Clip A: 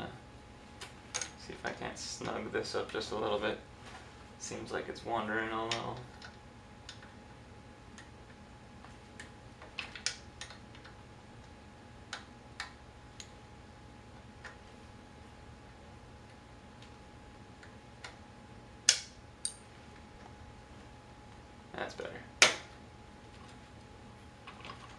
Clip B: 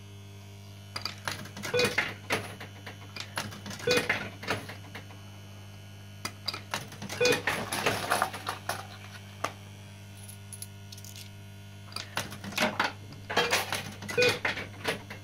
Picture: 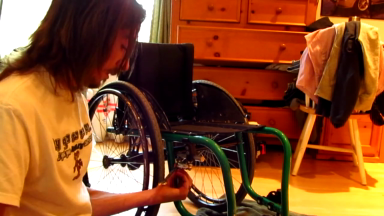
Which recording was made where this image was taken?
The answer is A